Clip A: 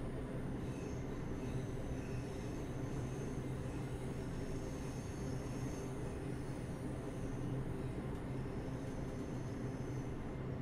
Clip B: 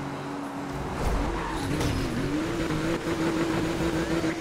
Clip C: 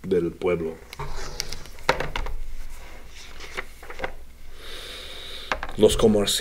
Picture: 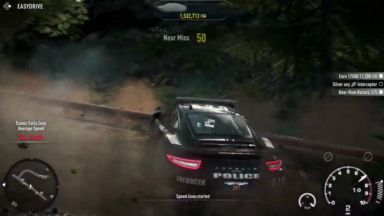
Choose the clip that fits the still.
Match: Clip B